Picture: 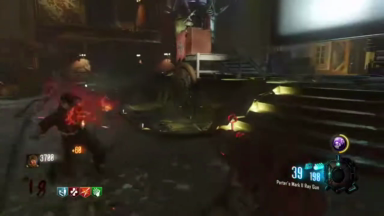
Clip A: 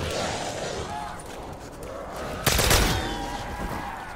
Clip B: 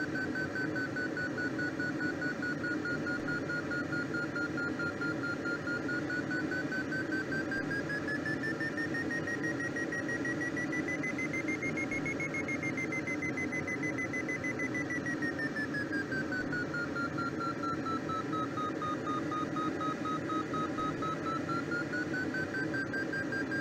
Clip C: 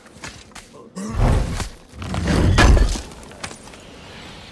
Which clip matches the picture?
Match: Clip A